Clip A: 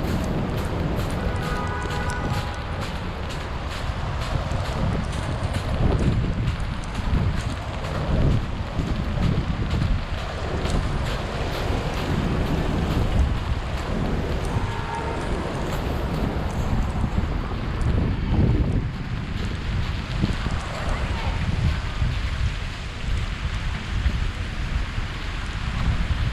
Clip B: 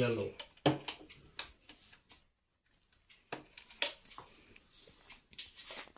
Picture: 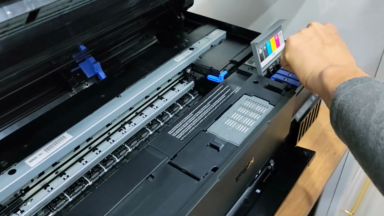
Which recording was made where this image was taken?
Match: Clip B